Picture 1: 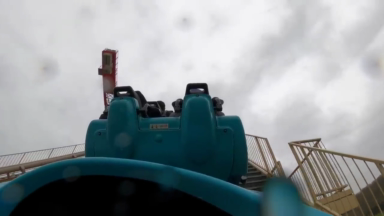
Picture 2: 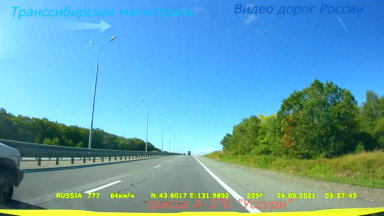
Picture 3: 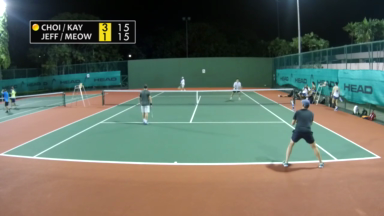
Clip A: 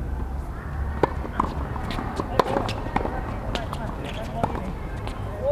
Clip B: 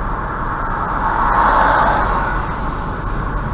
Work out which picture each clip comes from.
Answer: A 3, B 2